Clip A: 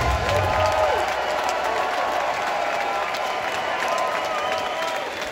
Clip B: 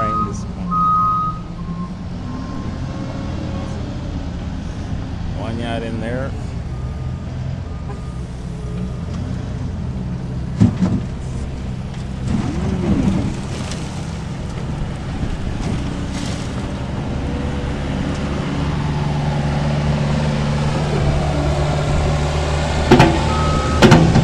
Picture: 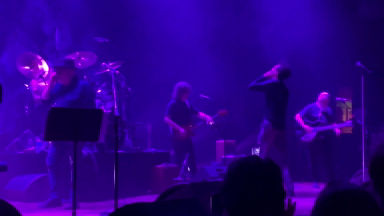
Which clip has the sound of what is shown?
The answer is A